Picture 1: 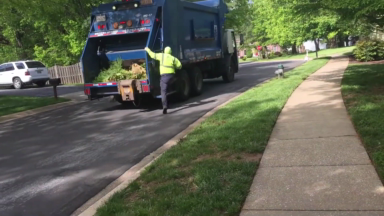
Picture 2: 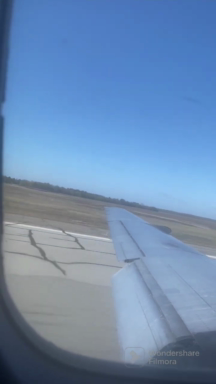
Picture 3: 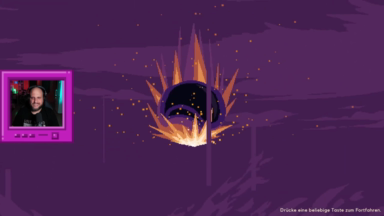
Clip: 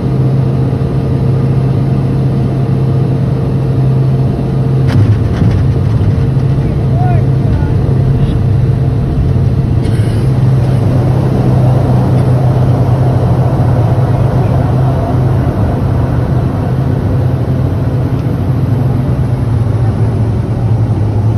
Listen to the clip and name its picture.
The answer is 2